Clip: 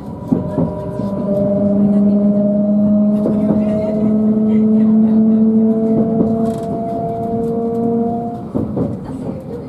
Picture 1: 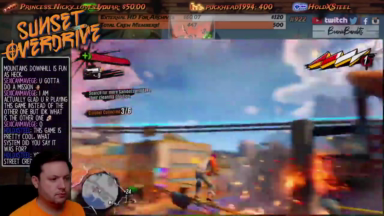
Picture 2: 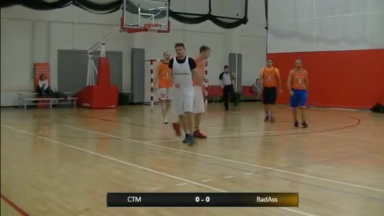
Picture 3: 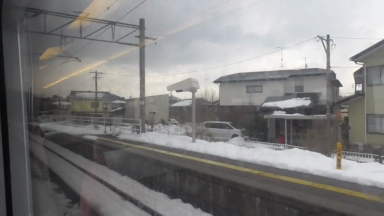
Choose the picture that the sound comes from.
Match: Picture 3